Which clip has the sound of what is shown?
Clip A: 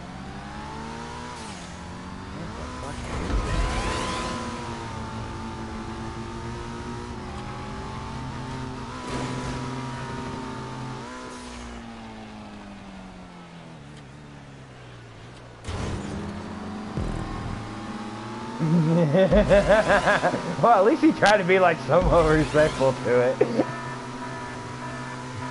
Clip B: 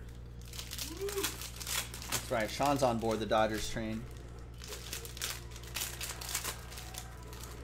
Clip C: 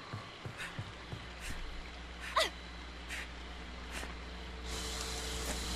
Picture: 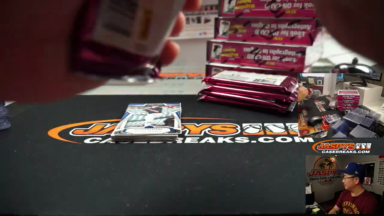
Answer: B